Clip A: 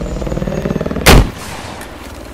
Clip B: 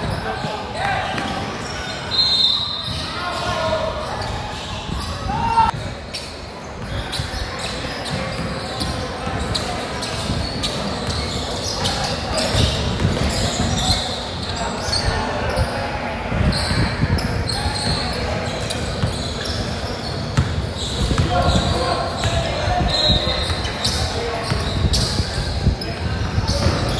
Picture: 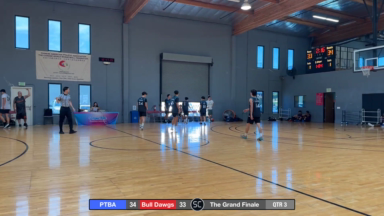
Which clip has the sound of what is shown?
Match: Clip B